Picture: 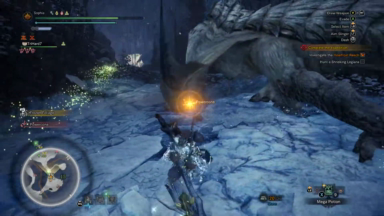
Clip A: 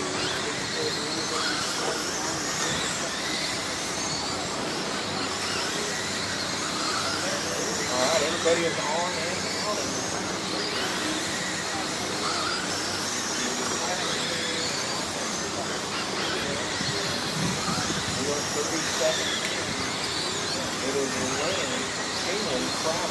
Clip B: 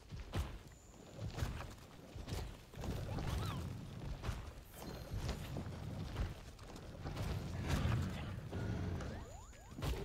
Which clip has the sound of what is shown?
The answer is B